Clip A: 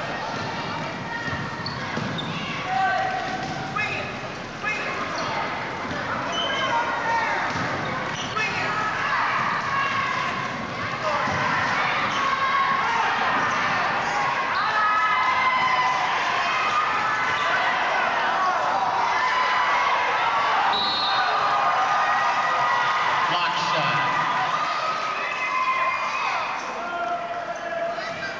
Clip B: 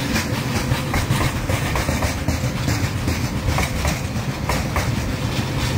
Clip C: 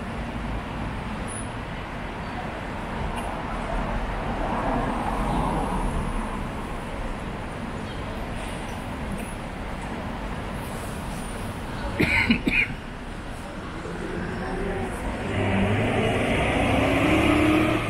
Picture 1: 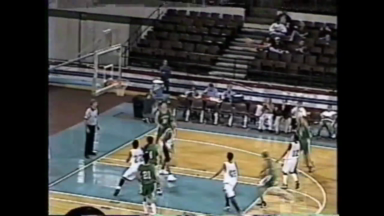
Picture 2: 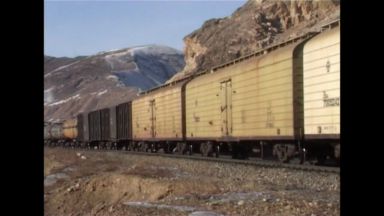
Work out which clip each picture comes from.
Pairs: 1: A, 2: B